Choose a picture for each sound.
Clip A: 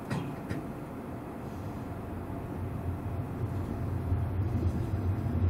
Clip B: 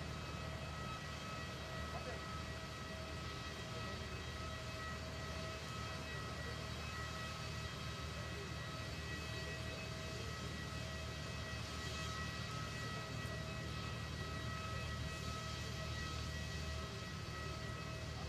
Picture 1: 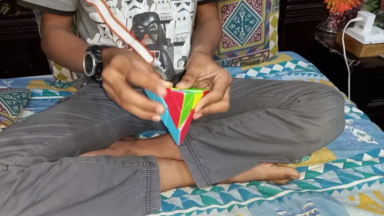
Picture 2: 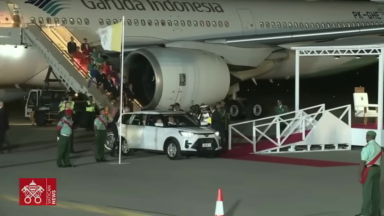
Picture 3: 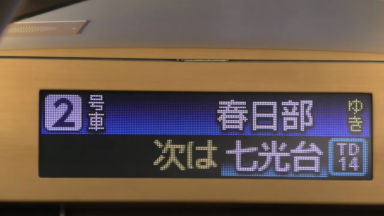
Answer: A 3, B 2